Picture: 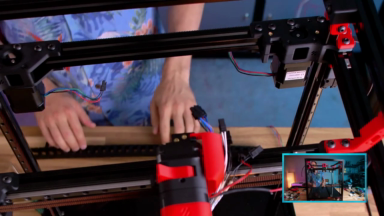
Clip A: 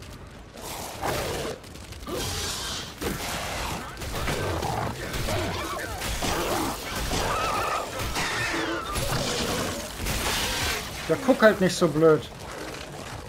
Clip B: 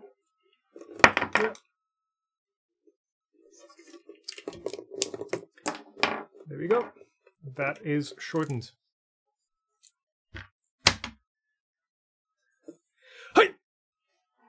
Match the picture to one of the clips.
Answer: B